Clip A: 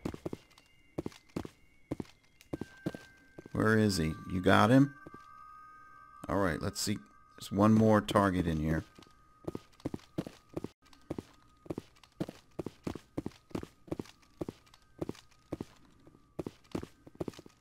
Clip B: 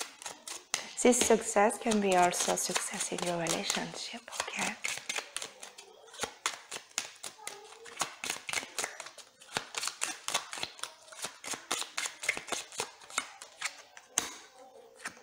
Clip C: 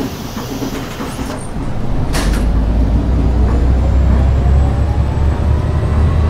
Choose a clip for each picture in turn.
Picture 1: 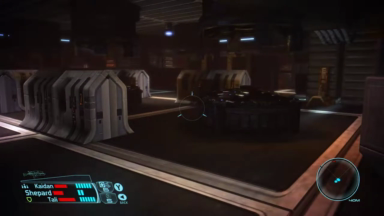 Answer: A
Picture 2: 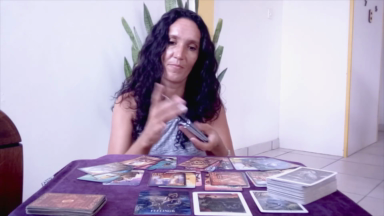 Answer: B